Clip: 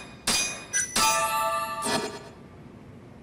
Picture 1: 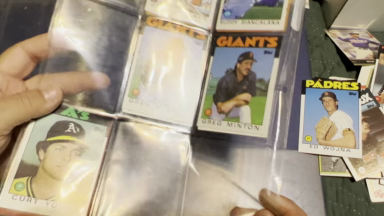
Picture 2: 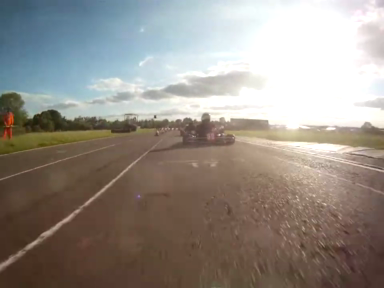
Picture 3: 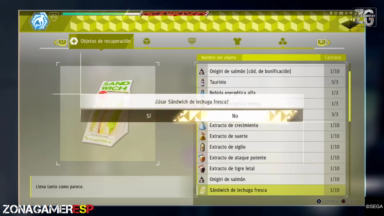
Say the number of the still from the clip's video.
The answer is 3